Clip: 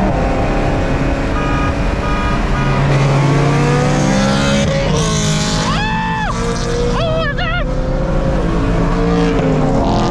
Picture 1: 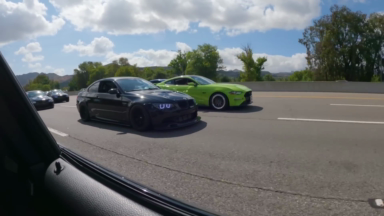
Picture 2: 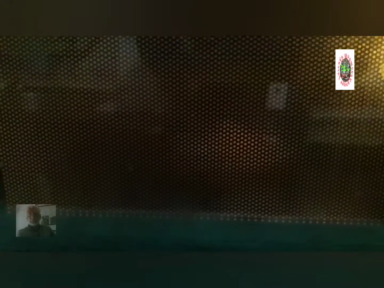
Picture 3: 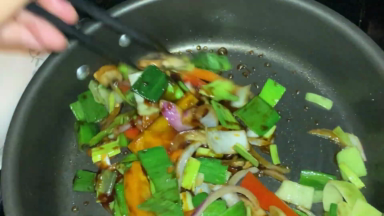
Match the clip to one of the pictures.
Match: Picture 1